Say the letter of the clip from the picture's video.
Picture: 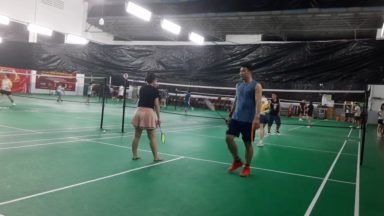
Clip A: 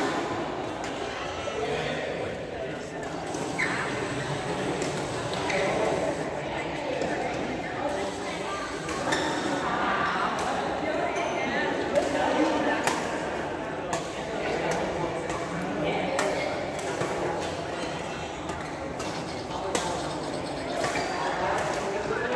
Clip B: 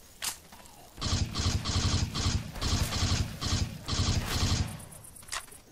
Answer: A